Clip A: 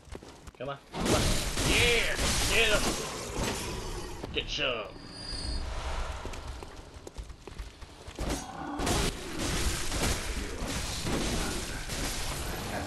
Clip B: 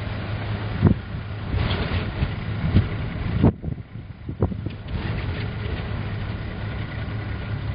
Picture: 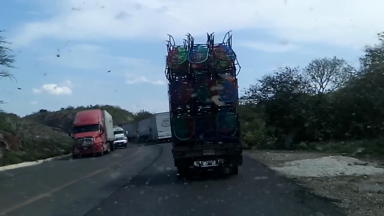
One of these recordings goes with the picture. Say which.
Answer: B